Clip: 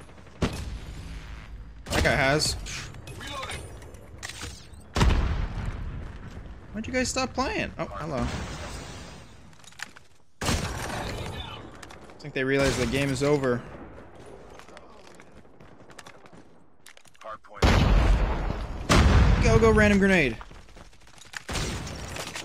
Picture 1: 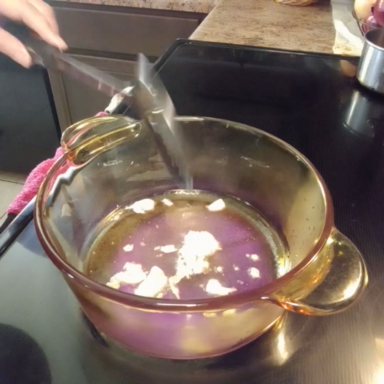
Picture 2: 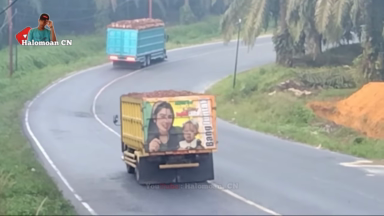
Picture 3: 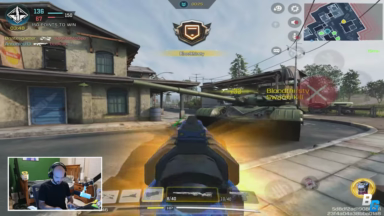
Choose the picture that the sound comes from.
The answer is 3